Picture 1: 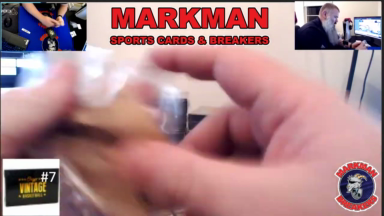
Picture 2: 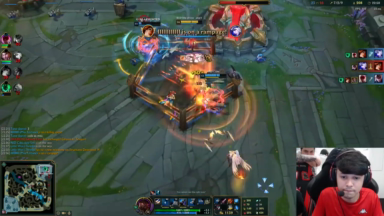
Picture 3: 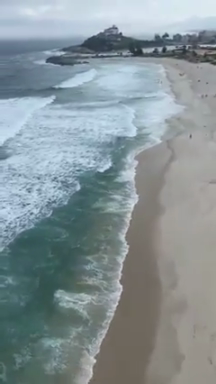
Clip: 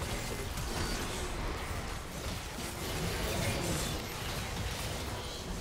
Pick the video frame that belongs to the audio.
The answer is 2